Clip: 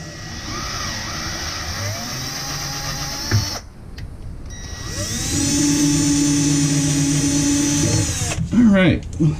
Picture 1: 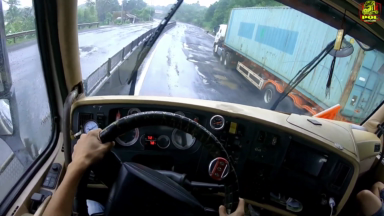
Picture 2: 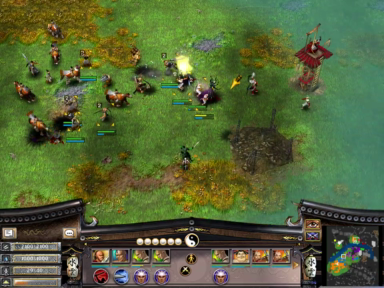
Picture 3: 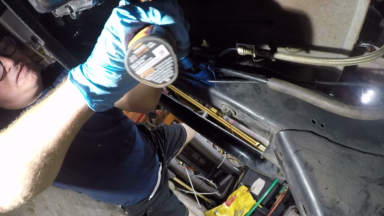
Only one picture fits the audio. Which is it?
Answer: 3